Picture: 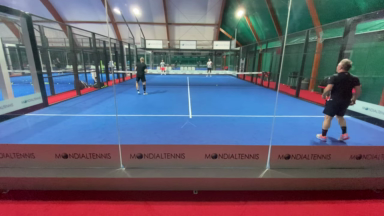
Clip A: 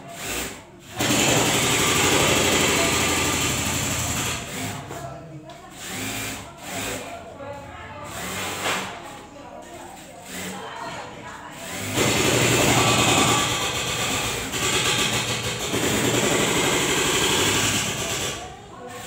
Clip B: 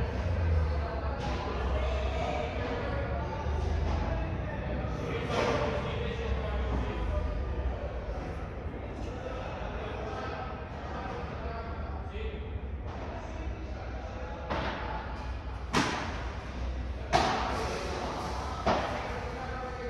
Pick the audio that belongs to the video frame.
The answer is B